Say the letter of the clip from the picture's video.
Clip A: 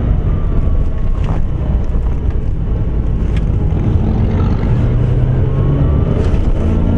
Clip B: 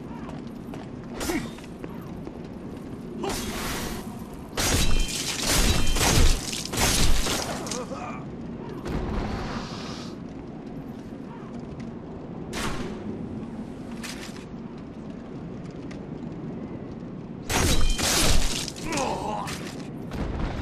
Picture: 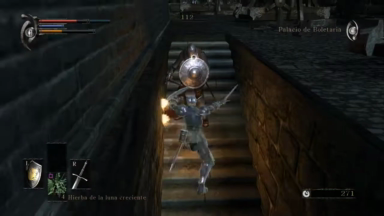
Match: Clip B